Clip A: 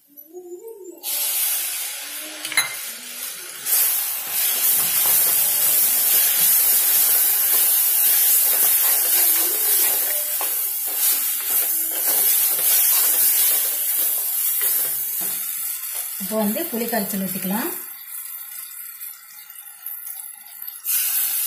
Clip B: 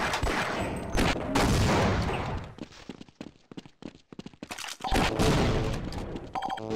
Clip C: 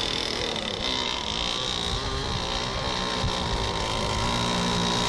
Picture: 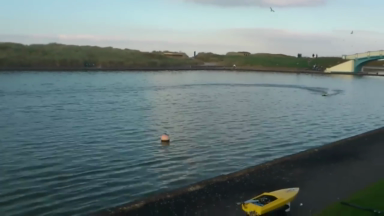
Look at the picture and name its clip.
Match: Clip C